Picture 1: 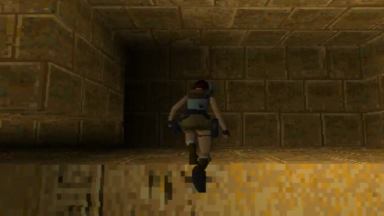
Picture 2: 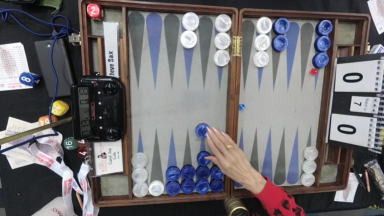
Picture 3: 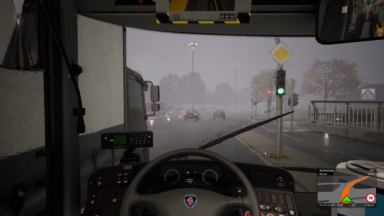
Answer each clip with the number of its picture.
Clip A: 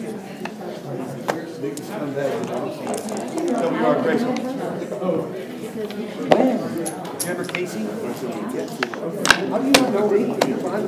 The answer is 2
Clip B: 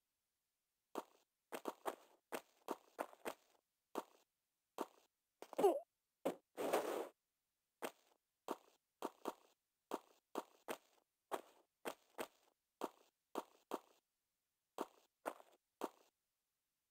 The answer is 1